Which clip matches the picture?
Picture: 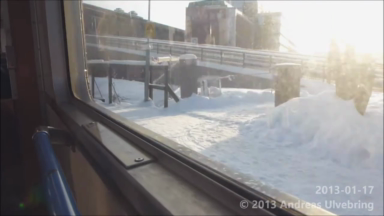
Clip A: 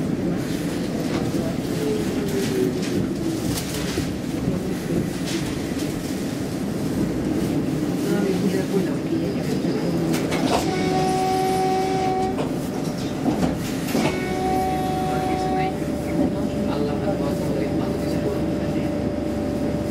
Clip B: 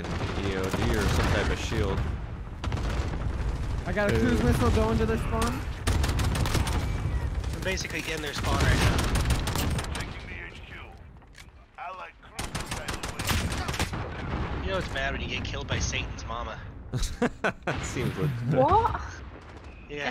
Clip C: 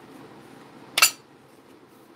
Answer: A